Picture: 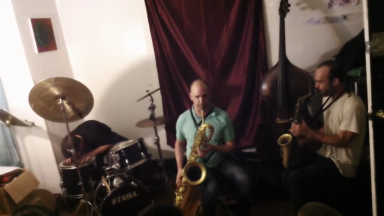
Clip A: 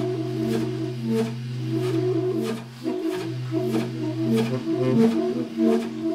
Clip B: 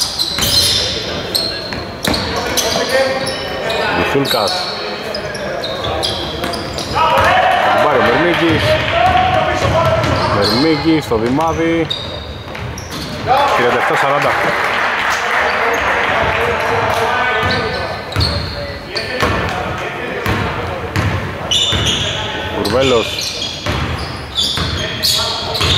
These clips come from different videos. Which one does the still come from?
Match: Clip A